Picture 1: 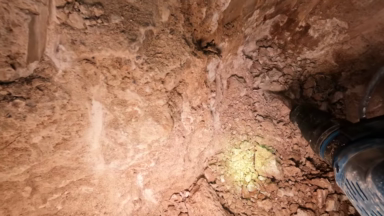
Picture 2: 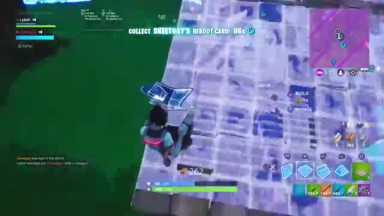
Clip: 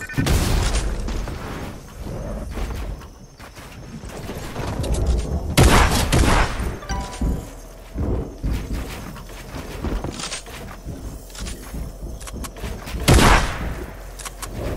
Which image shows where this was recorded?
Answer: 2